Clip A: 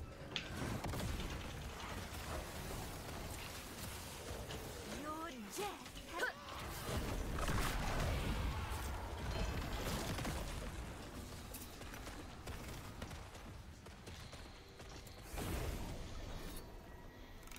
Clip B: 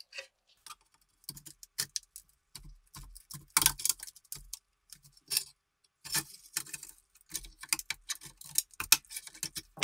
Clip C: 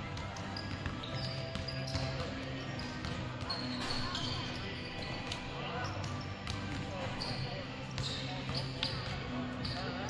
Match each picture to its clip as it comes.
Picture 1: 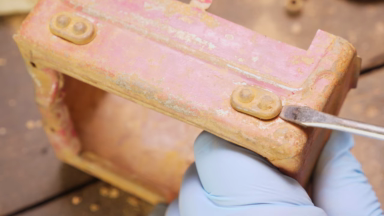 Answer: B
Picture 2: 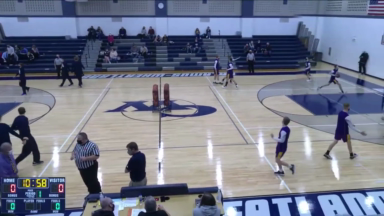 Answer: C